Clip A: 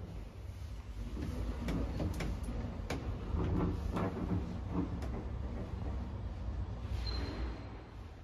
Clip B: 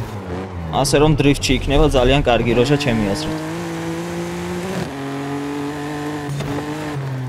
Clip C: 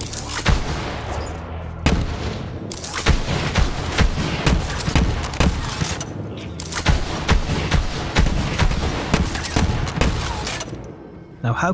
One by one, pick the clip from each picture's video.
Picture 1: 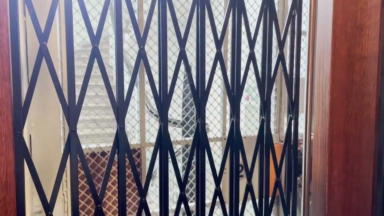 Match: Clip A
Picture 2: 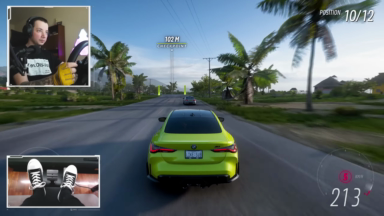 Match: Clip B